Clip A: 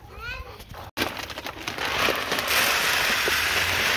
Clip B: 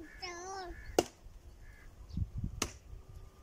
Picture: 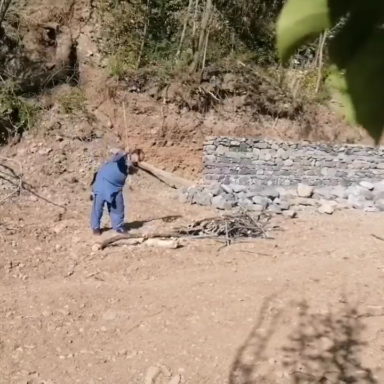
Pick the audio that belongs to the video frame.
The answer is B